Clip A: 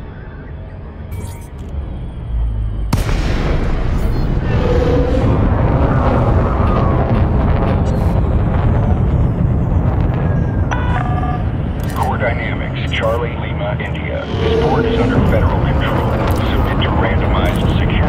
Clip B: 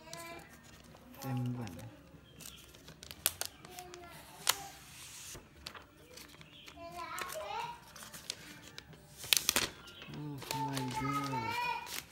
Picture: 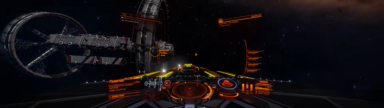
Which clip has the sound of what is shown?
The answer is A